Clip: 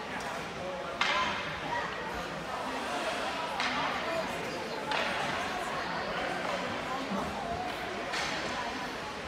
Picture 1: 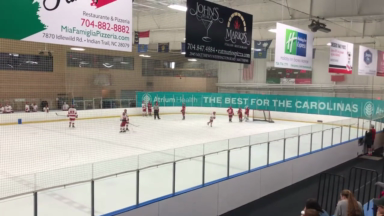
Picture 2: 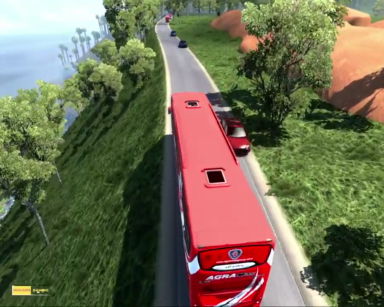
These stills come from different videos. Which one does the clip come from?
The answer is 1